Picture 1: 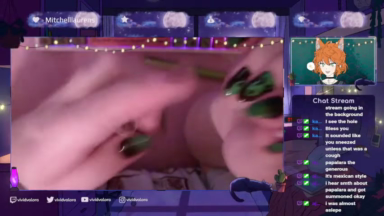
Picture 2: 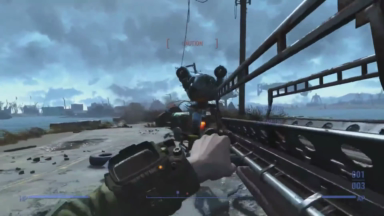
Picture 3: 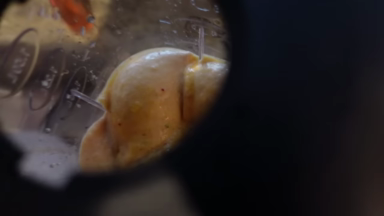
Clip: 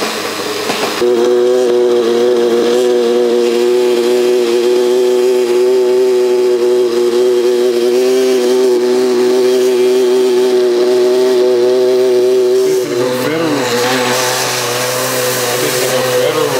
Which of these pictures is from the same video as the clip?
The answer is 3